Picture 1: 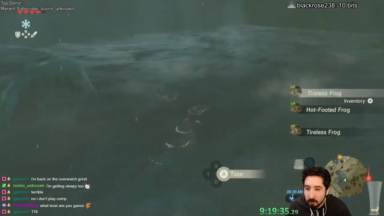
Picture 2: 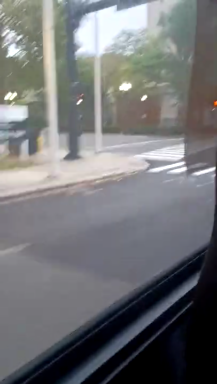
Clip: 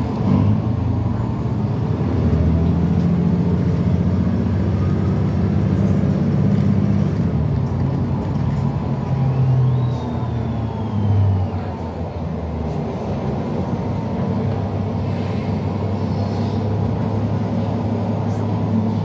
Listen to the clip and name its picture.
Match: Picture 2